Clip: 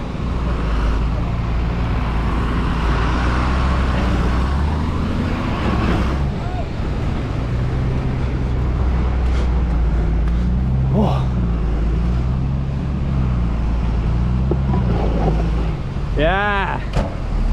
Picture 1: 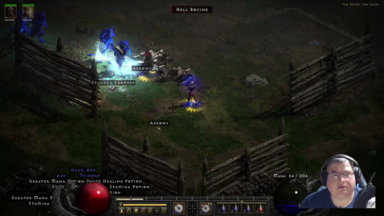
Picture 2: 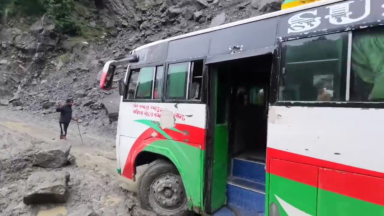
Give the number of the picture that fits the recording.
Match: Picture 2